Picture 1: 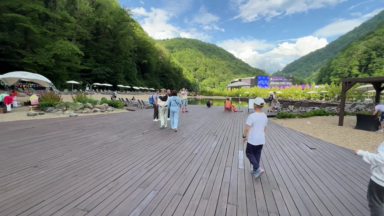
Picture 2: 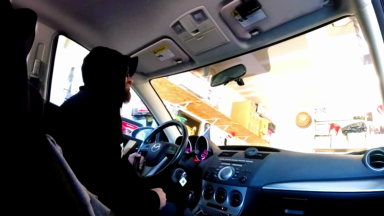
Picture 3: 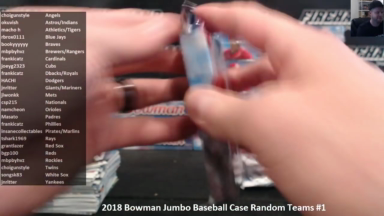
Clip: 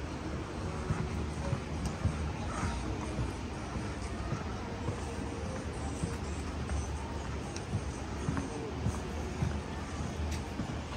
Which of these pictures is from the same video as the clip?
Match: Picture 1